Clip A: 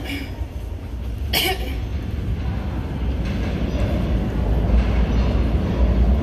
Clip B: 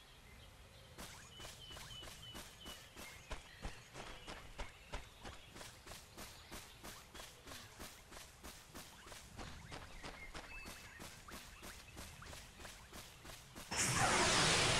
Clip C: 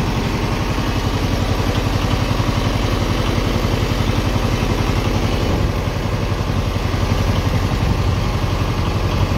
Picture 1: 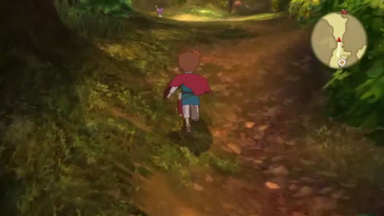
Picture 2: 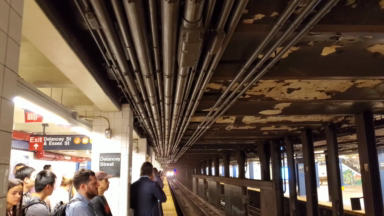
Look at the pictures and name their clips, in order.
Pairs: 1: B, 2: A